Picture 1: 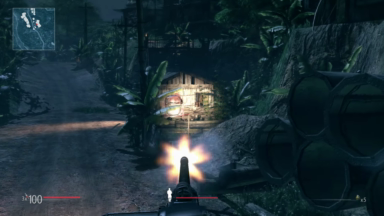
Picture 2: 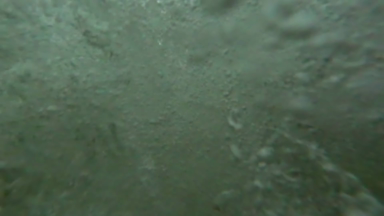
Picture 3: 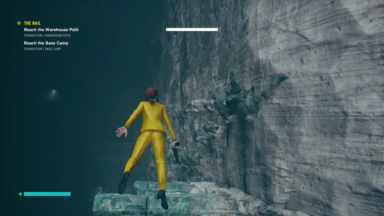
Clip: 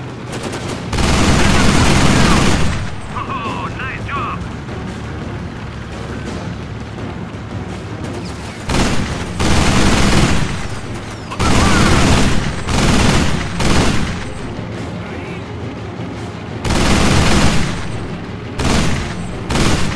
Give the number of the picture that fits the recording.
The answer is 1